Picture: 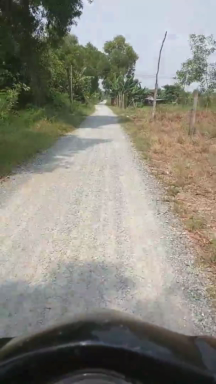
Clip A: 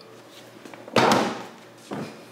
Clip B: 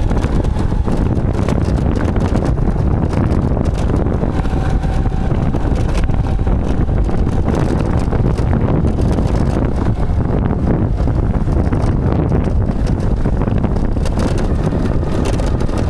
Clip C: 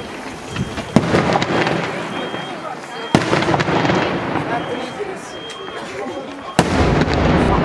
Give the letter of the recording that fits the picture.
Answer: B